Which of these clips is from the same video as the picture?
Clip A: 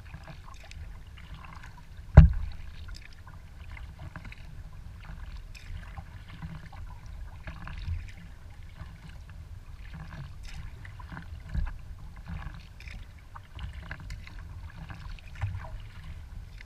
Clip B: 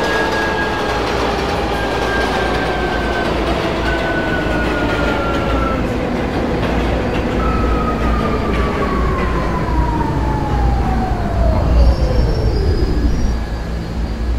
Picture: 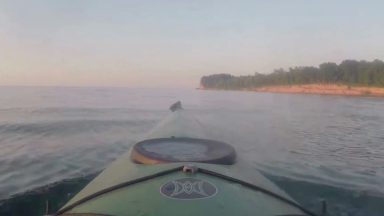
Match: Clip A